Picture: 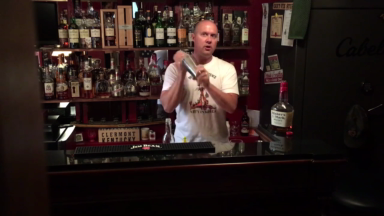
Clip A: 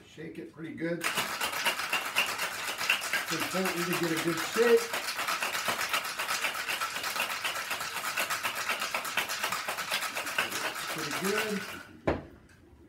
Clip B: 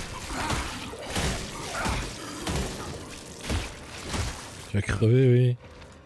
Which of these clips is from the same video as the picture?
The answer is A